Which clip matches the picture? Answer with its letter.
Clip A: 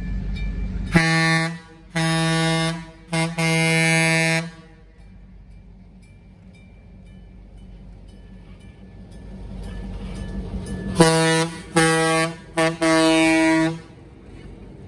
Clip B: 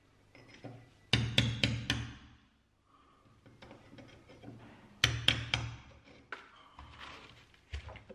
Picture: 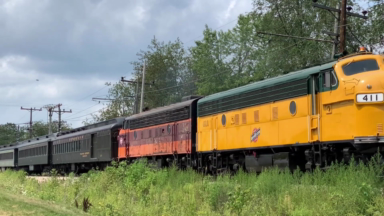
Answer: A